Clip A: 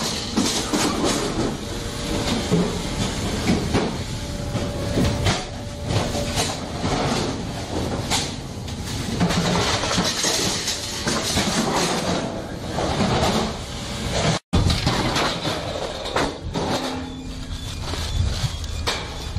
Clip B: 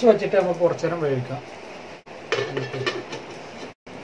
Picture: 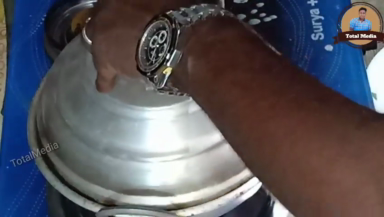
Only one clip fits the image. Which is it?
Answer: B